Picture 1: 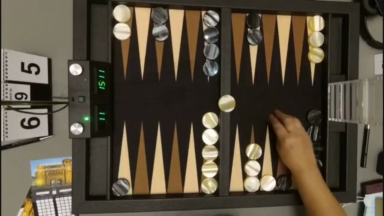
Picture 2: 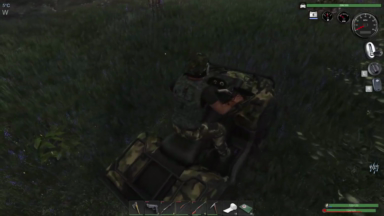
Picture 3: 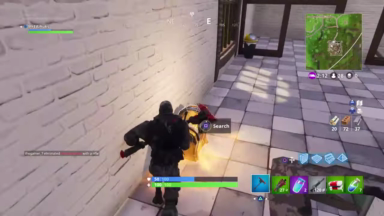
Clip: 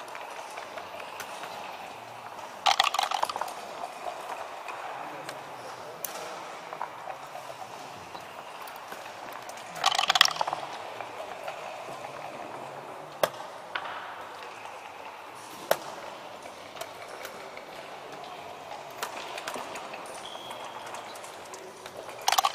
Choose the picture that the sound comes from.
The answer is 1